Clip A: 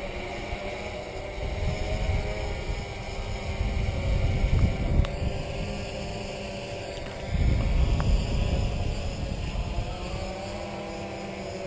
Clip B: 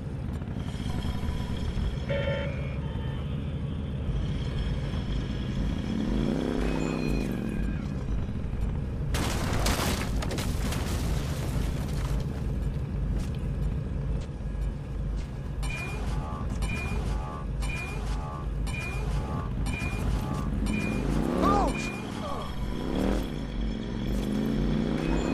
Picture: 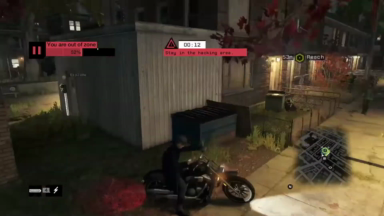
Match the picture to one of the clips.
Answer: B